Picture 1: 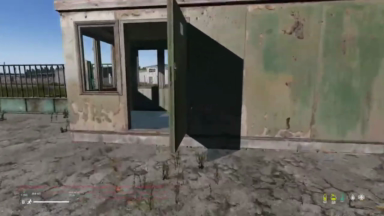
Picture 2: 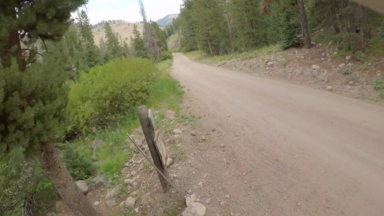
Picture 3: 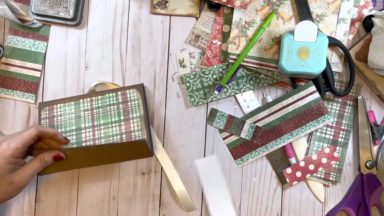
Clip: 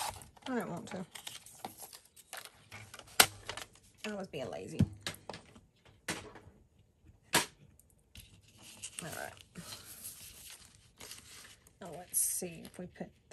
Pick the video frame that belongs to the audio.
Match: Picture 3